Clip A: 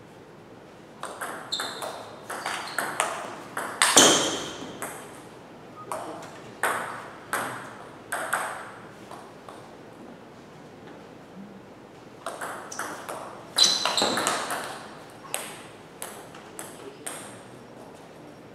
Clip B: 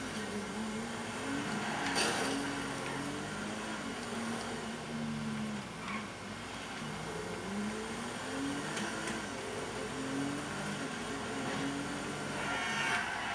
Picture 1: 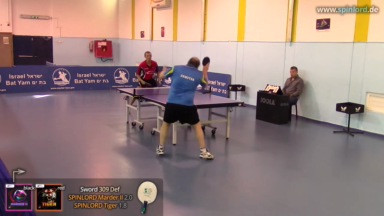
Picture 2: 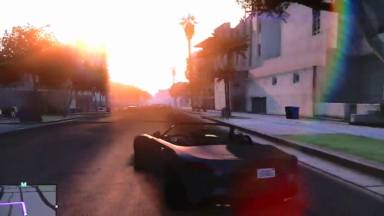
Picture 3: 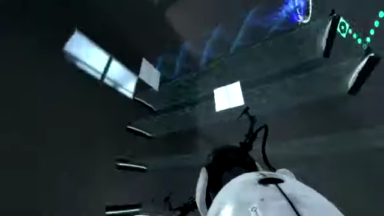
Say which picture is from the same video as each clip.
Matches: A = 1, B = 2